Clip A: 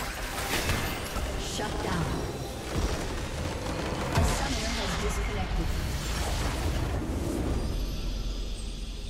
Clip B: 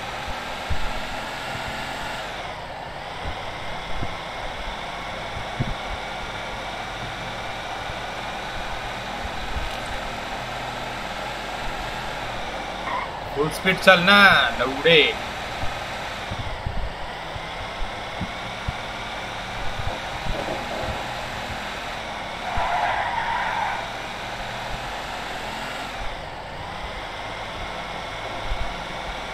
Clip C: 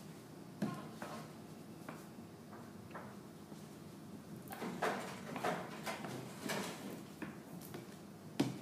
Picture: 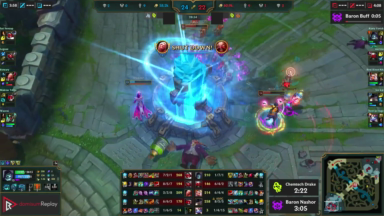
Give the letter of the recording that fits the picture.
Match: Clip A